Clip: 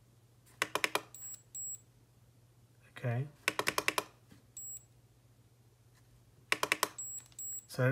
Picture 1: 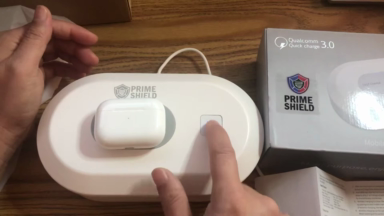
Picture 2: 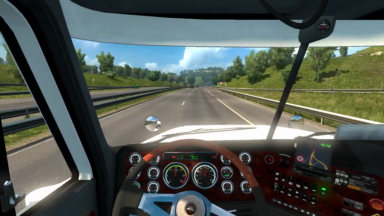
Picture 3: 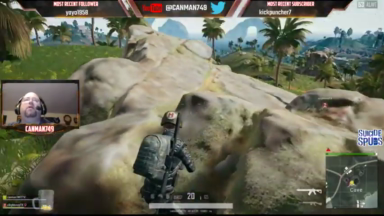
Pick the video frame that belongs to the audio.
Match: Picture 1